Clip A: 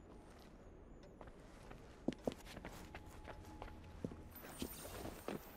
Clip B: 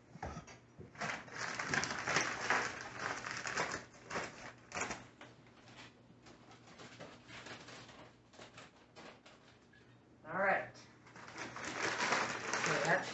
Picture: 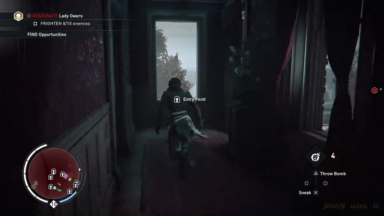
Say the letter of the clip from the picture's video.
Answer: A